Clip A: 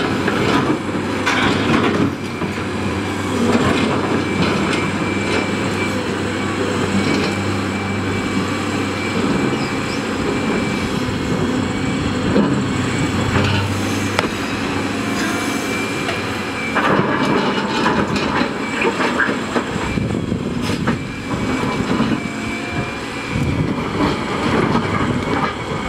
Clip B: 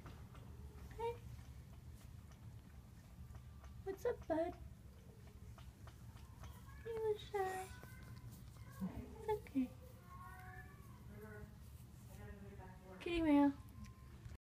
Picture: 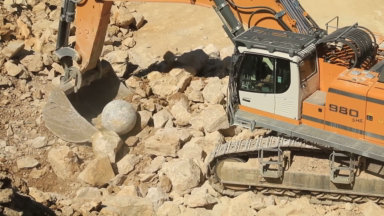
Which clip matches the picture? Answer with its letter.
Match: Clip A